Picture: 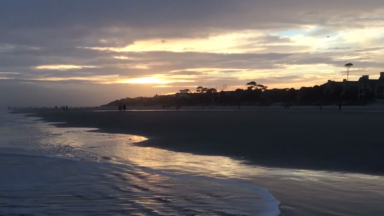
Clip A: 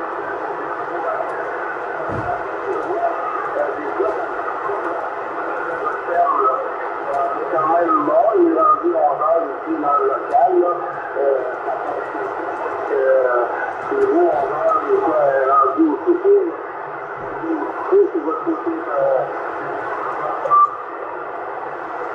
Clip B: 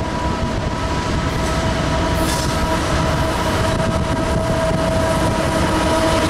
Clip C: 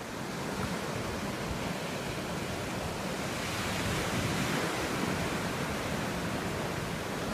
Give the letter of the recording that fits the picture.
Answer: C